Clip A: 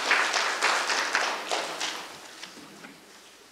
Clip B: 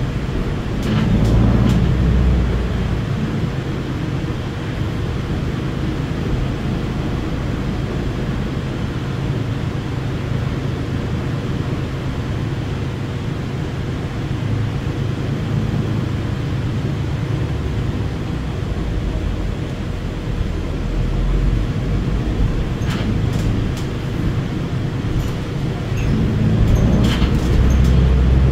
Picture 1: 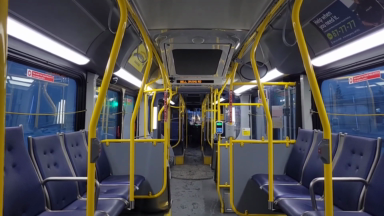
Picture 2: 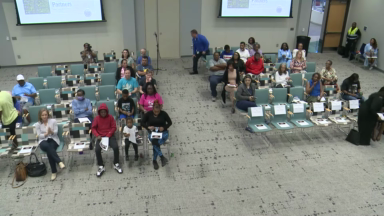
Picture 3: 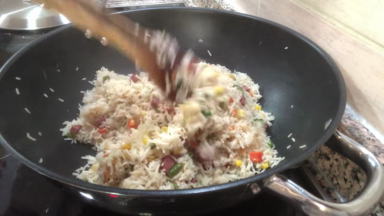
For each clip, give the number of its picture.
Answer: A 2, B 1